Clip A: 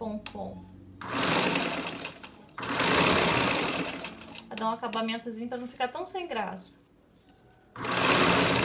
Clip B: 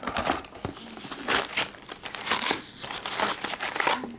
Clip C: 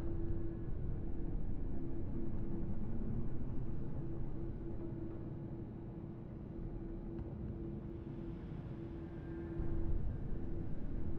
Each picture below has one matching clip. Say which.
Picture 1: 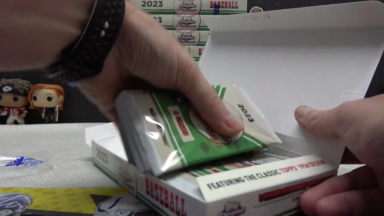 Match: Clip B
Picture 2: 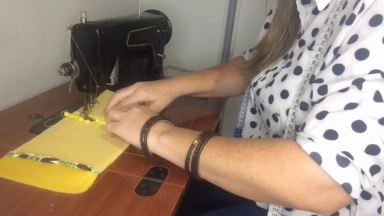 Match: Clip A